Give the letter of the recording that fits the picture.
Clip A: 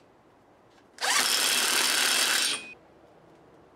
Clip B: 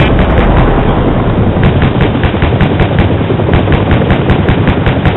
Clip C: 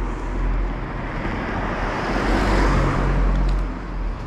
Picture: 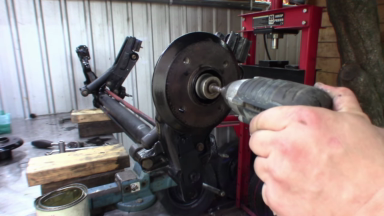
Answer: A